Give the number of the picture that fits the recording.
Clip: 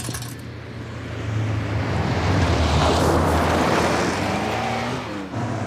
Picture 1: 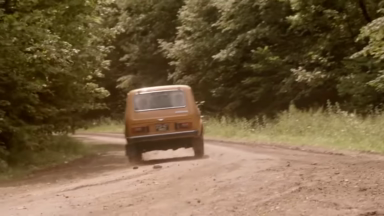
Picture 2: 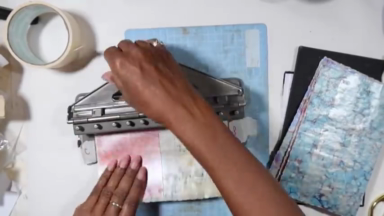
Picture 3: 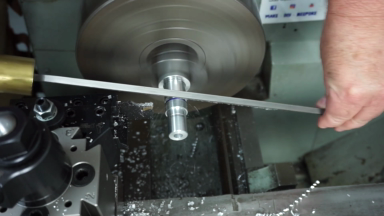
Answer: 1